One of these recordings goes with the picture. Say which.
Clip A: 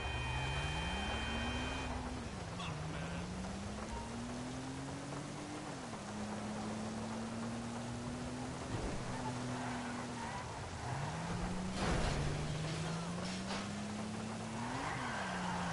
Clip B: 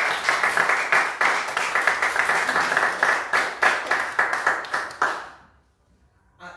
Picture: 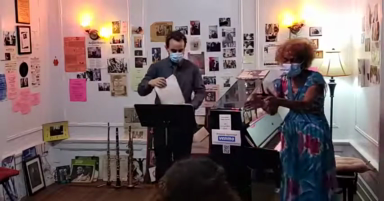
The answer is B